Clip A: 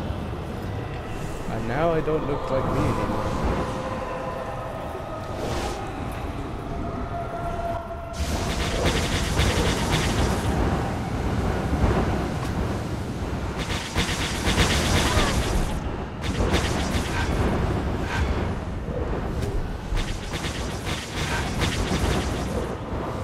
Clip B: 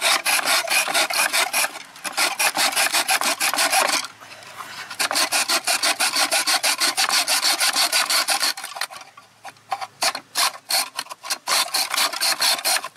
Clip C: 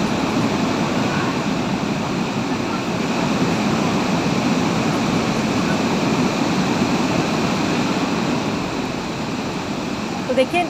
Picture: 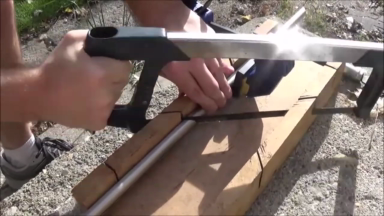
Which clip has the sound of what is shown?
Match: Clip B